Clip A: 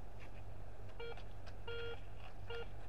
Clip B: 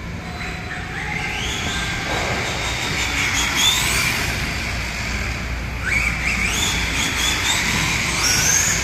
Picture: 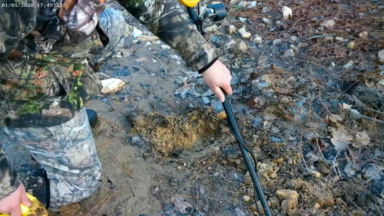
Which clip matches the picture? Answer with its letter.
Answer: A